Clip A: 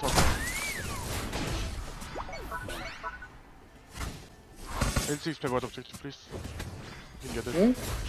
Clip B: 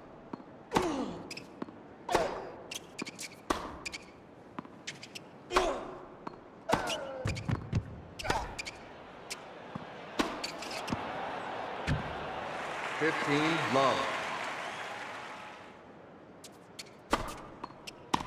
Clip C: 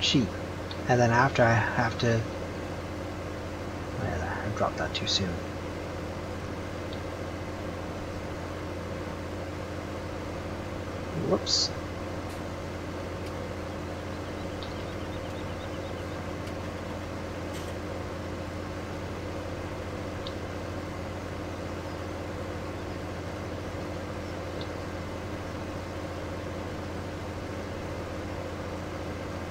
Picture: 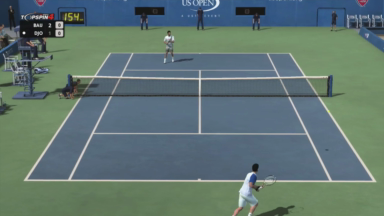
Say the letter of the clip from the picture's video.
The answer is B